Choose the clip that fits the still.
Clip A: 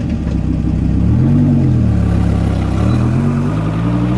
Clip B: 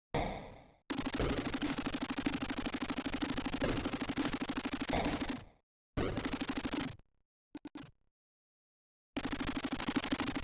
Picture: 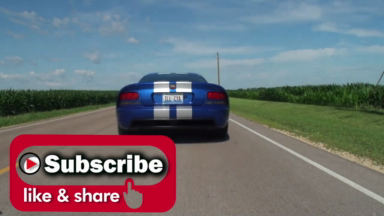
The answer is A